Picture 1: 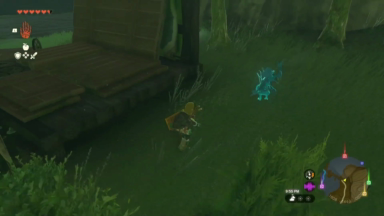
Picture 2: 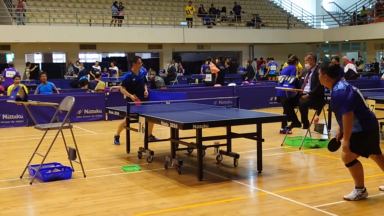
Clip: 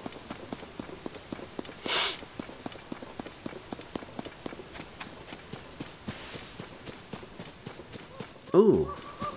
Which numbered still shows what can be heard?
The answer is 1